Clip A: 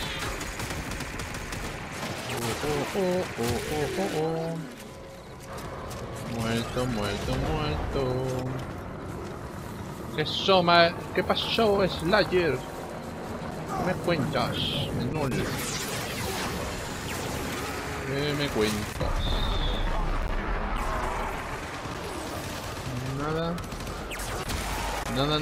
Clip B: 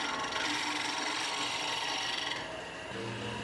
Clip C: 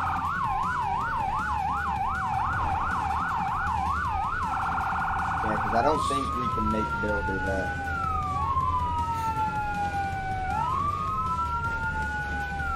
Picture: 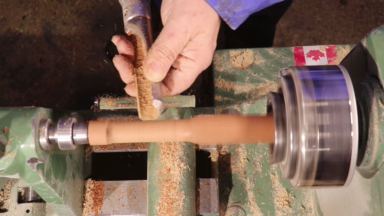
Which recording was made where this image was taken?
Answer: B